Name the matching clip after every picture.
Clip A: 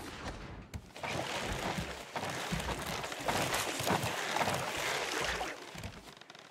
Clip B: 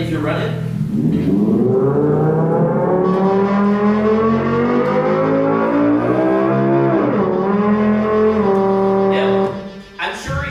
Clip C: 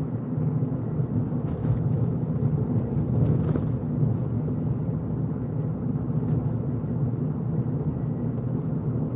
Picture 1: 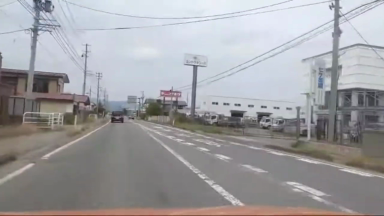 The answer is C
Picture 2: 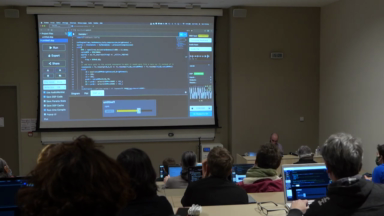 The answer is B